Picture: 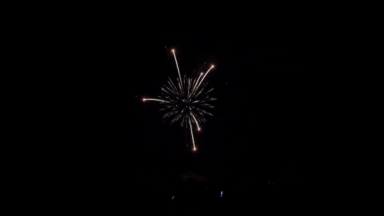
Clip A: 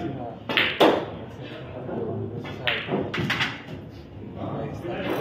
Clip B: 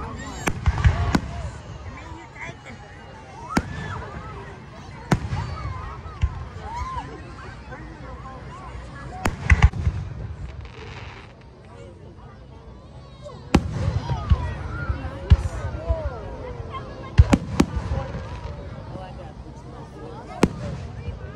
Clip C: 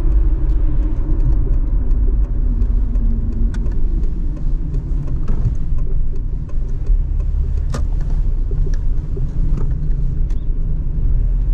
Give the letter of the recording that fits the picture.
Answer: B